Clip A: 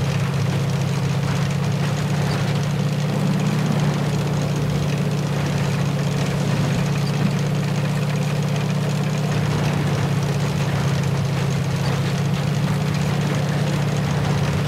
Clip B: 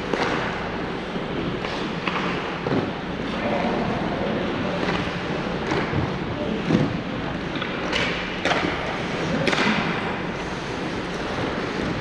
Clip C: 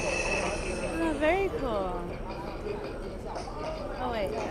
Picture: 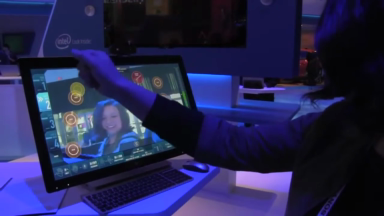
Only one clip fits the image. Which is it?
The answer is C